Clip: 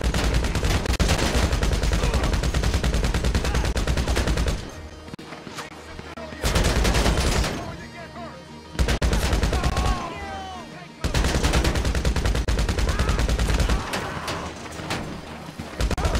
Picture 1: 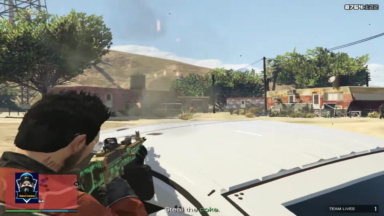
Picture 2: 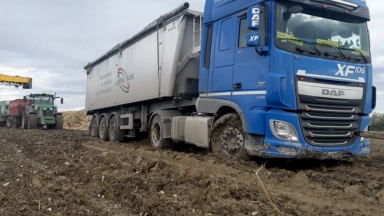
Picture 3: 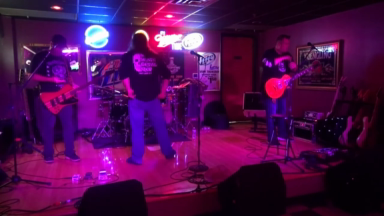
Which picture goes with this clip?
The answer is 1